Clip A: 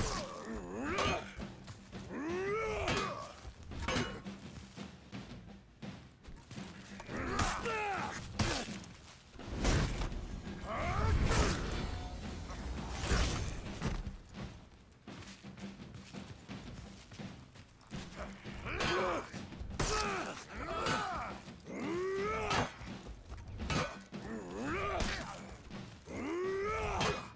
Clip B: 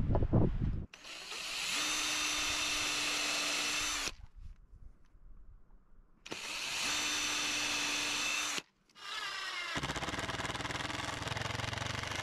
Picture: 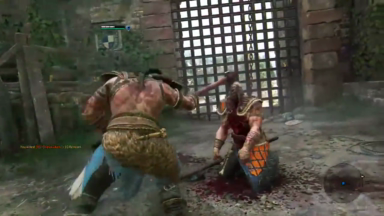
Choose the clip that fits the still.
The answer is A